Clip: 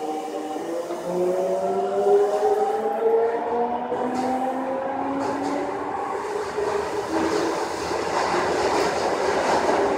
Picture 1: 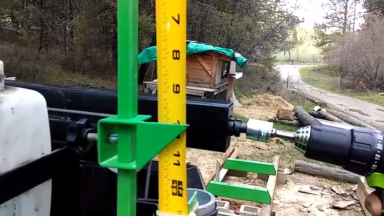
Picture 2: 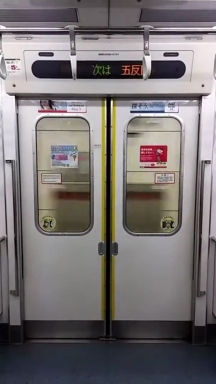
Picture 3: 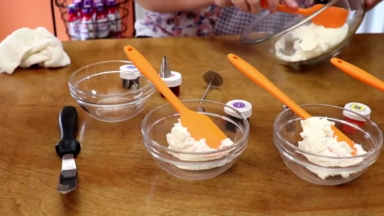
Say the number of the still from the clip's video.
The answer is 2